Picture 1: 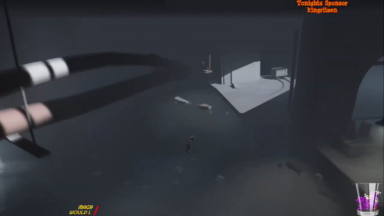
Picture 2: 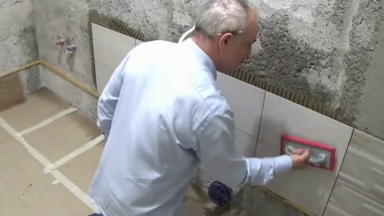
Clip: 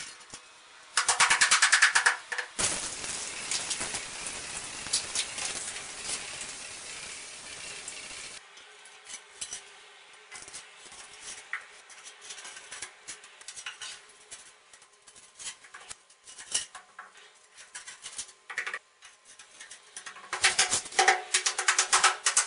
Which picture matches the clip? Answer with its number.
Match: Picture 2